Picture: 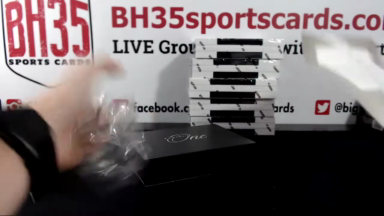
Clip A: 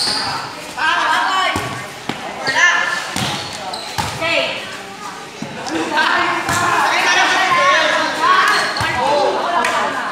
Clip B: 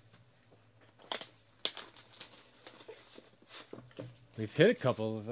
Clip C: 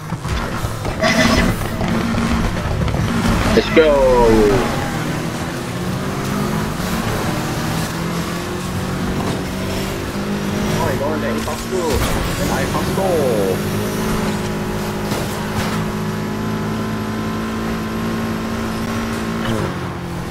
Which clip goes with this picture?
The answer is B